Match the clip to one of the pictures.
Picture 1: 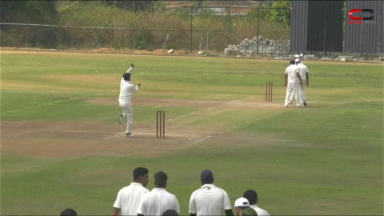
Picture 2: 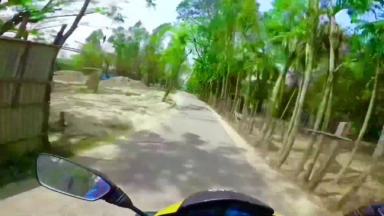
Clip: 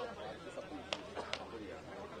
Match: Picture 1